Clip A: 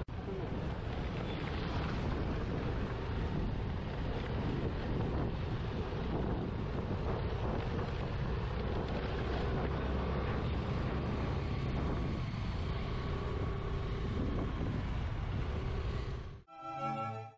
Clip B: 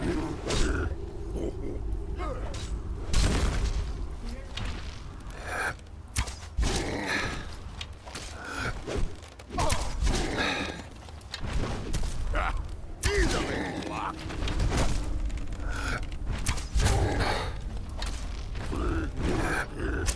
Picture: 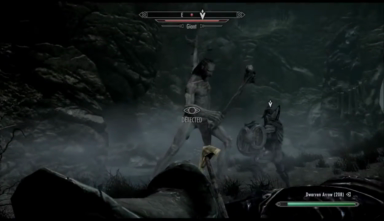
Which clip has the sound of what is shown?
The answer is B